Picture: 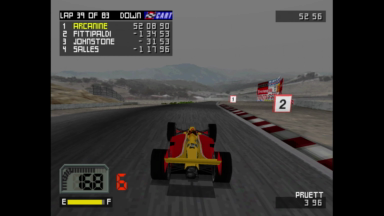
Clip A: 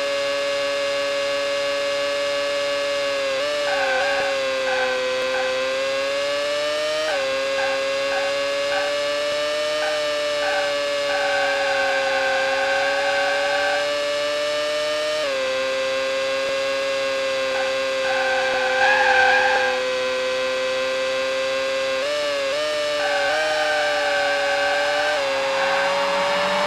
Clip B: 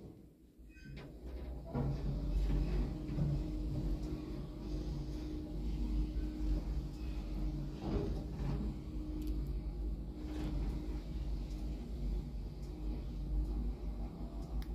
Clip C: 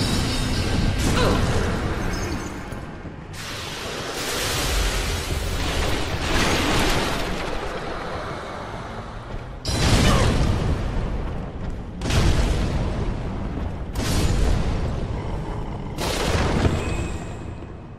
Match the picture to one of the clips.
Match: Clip A